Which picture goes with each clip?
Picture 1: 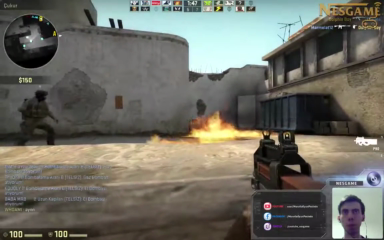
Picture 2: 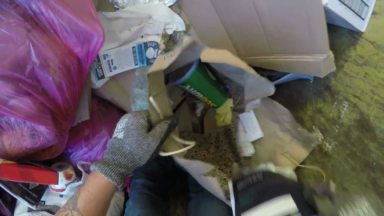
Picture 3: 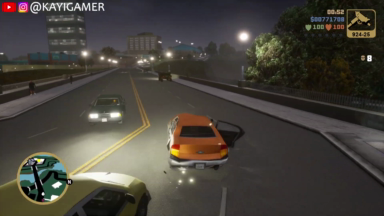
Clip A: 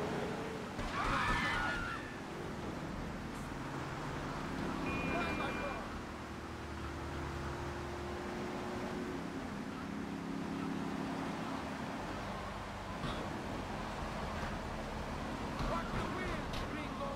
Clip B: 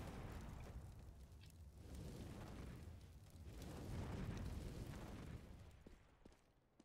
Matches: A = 3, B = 1